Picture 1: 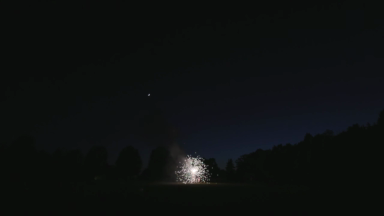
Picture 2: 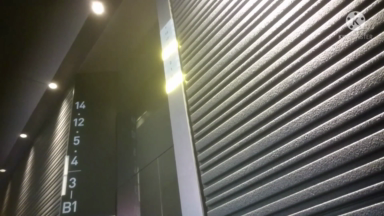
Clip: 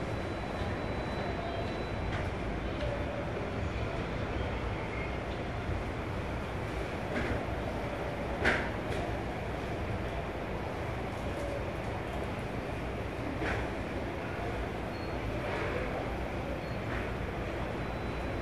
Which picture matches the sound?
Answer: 2